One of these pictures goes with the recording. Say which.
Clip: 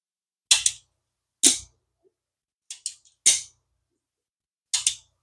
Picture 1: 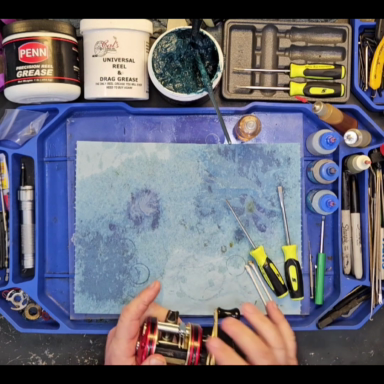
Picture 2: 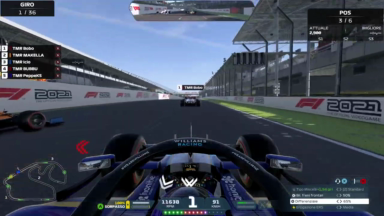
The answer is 1